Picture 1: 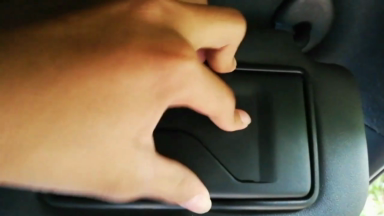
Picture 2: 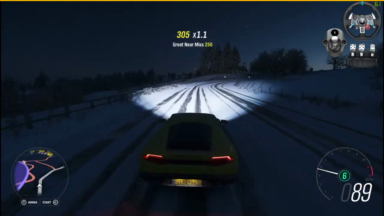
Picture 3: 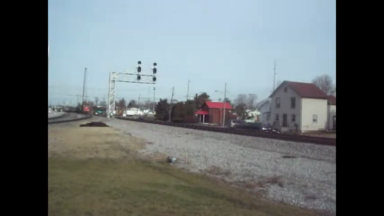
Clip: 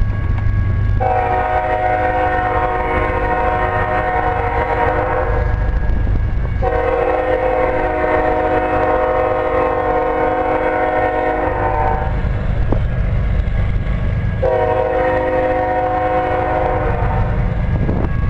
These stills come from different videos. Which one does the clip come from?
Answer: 3